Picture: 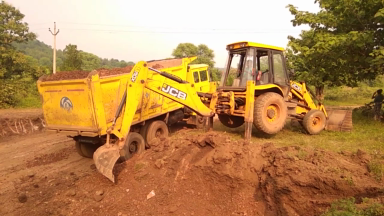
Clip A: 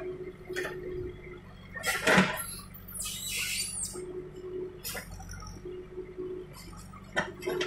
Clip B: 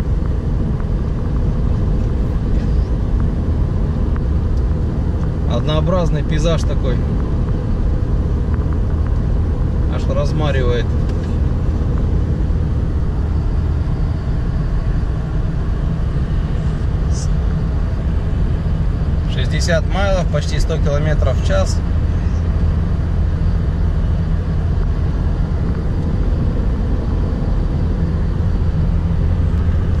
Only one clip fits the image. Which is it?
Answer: A